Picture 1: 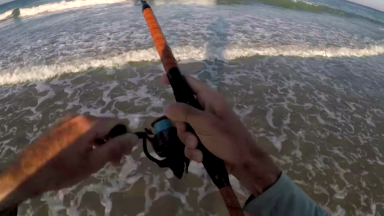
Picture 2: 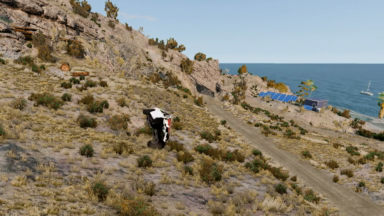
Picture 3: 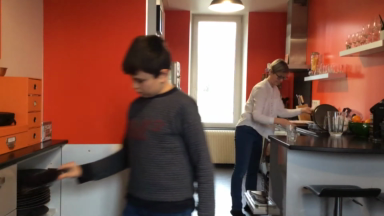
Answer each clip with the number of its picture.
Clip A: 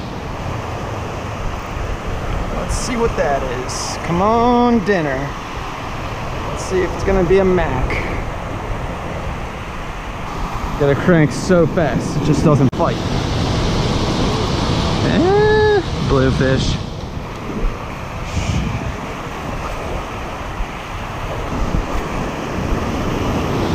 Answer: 1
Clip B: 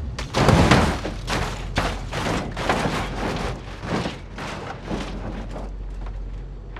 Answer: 2